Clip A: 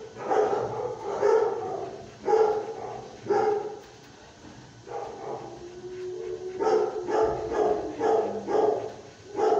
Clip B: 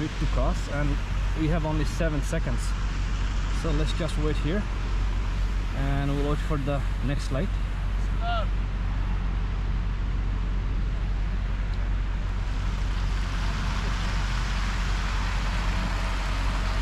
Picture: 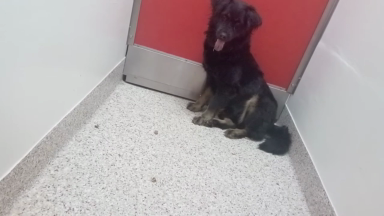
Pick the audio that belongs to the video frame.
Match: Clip A